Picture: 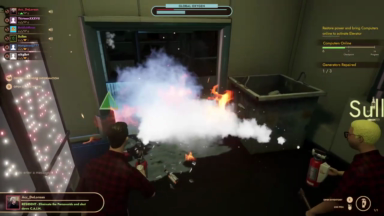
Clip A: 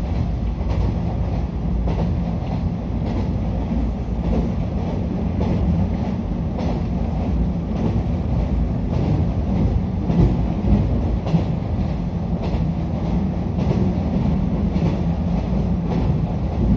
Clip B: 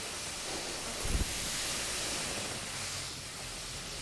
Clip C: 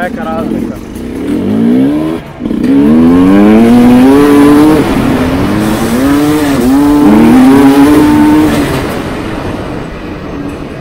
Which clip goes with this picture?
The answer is B